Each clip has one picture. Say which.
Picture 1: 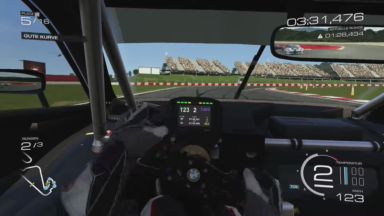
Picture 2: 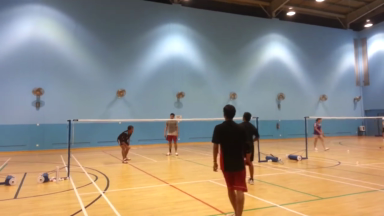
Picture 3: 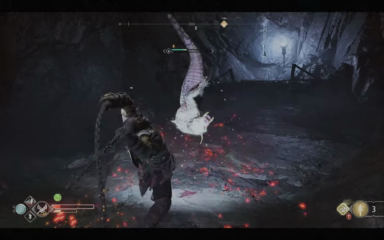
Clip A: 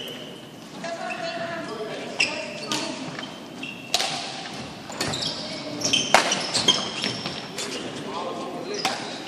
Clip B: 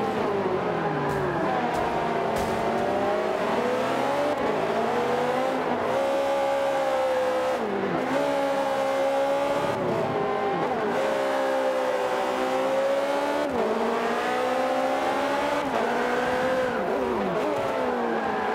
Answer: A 2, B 1